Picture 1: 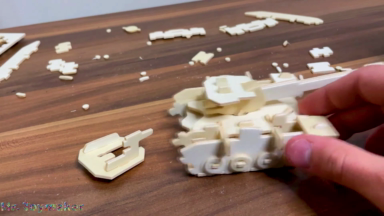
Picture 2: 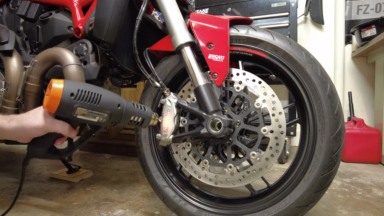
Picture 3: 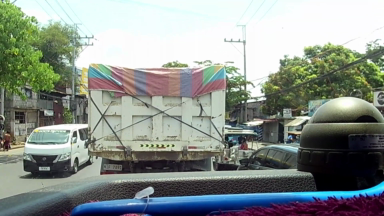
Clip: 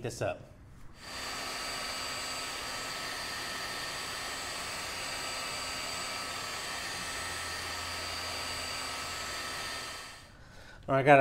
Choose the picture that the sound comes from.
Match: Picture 2